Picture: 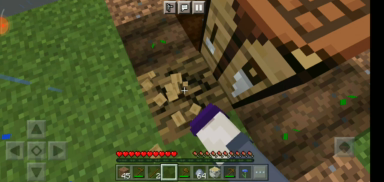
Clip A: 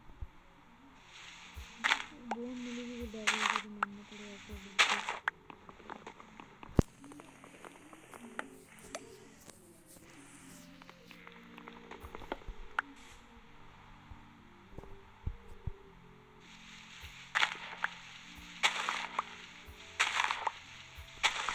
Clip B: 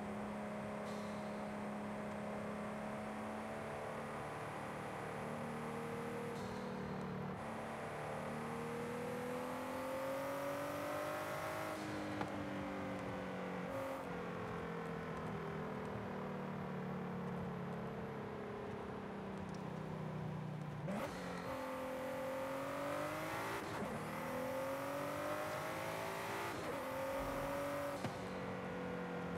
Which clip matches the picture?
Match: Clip A